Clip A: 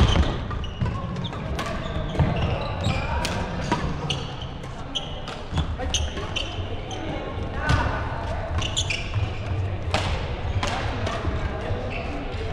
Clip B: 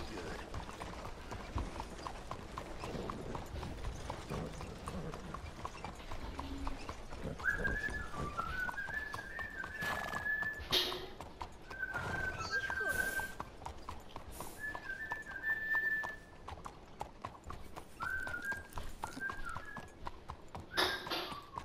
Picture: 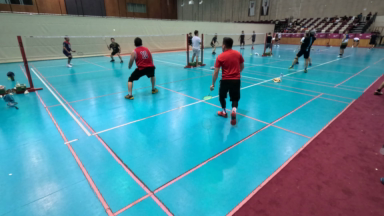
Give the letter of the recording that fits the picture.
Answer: A